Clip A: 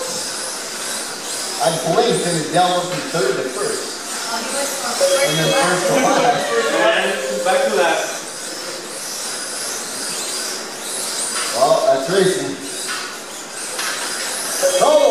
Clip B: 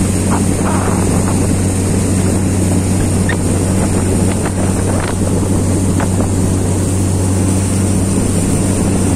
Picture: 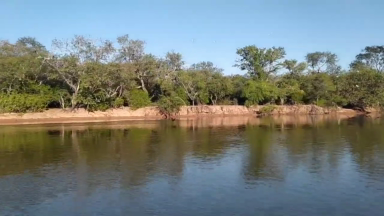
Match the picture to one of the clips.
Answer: B